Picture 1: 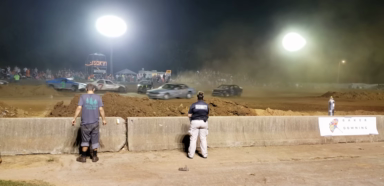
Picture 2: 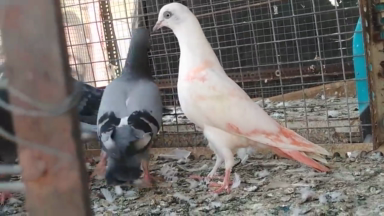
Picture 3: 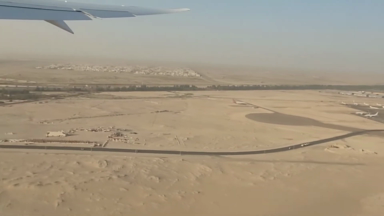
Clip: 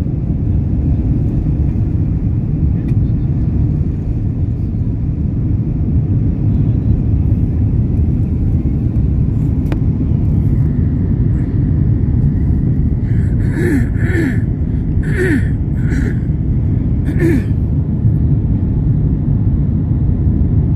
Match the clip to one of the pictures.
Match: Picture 3